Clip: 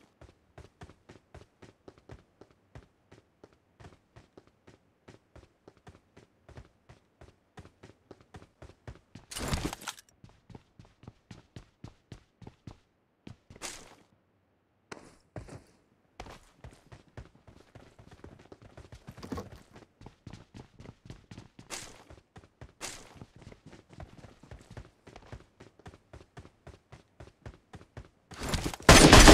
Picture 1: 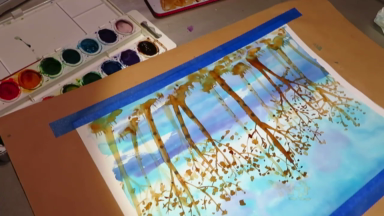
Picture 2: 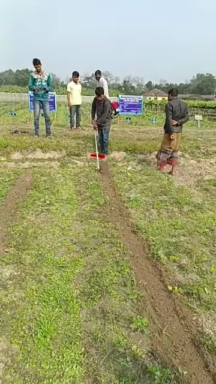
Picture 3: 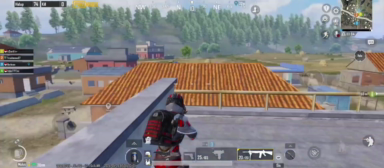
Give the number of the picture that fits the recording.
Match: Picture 3